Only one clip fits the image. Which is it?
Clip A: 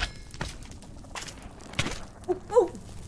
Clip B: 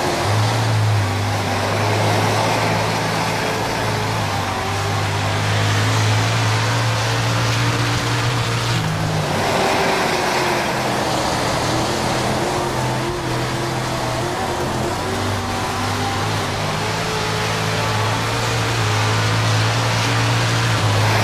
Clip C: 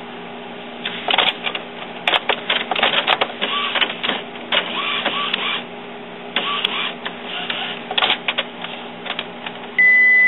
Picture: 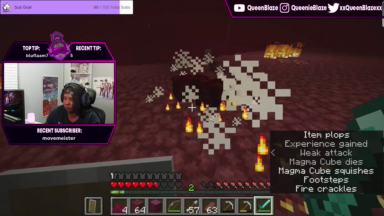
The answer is A